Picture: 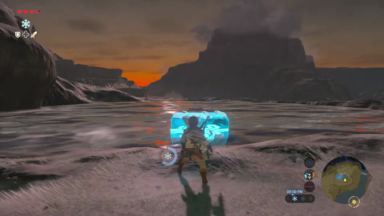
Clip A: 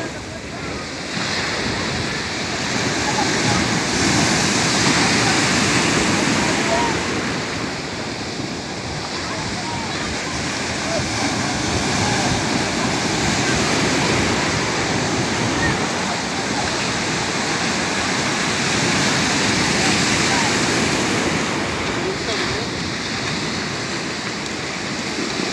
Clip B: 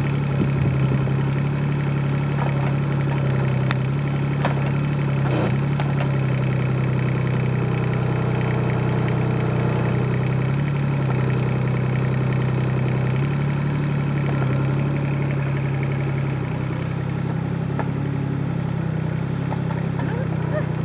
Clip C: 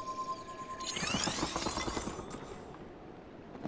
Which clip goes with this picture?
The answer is C